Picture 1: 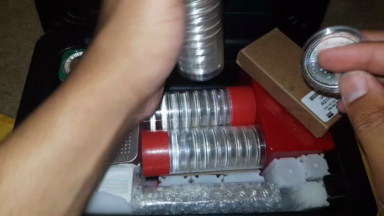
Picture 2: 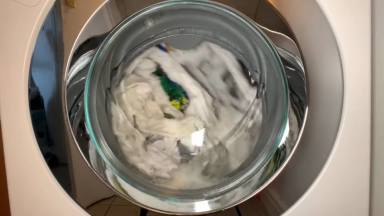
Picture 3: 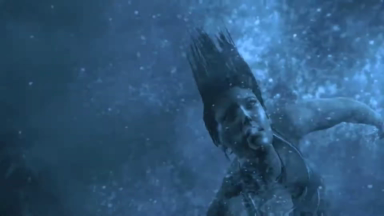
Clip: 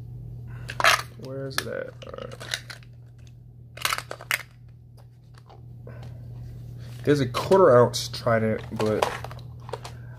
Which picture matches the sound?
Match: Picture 1